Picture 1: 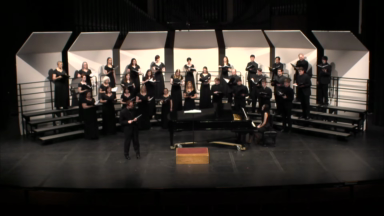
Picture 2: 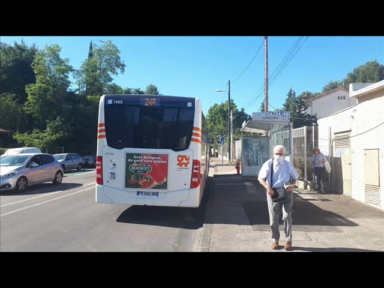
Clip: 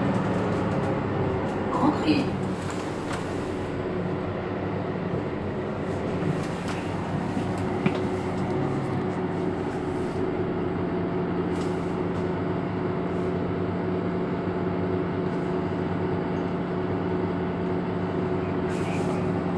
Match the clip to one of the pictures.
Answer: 2